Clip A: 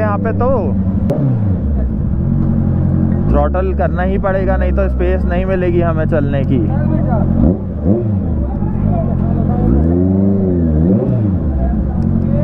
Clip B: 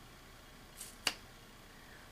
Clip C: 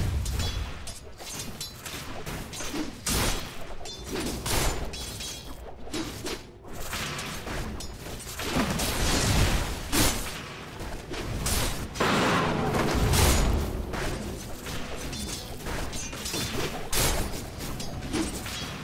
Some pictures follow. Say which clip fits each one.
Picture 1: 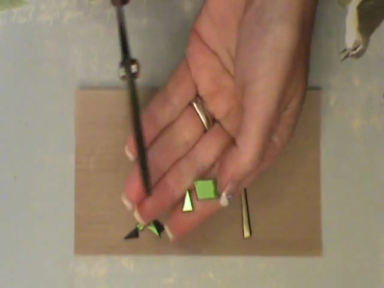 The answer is B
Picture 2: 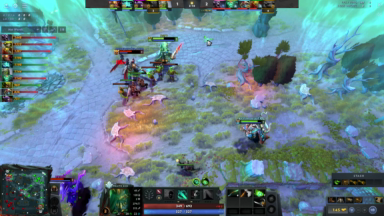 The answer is C